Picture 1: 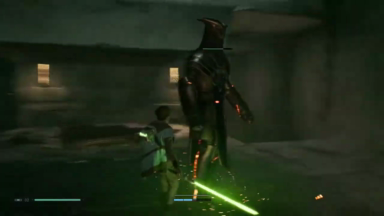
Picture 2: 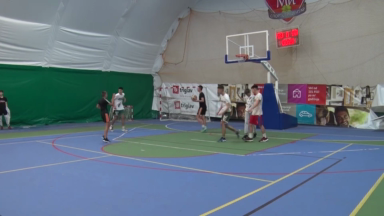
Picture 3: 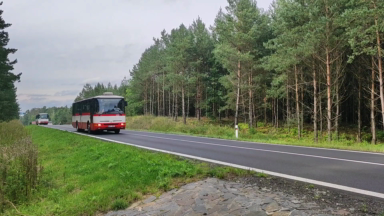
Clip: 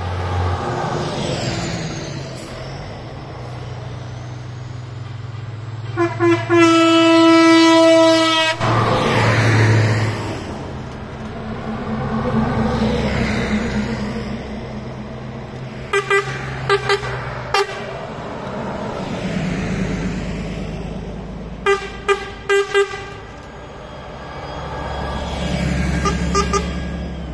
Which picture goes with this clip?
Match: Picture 3